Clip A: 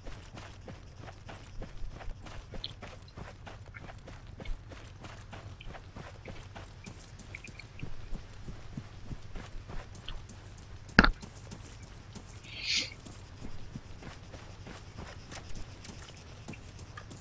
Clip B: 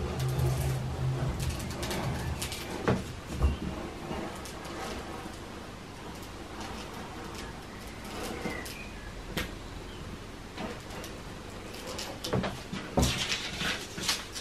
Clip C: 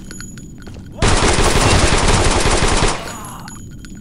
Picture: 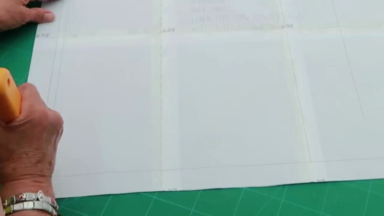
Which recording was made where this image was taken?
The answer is B